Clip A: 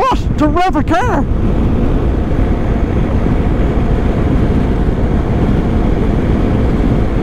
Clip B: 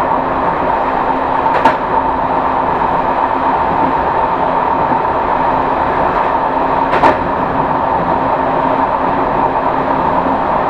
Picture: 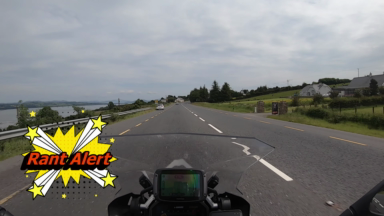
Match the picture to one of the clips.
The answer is A